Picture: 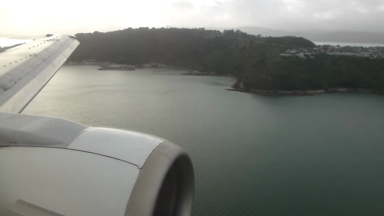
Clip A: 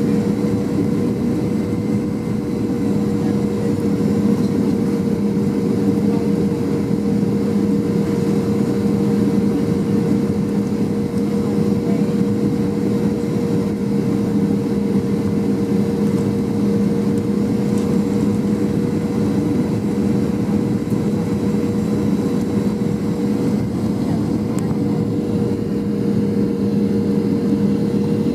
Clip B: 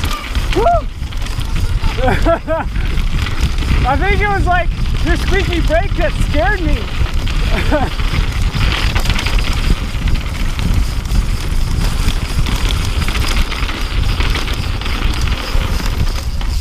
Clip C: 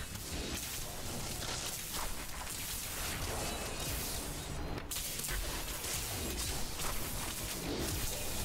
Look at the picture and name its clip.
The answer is A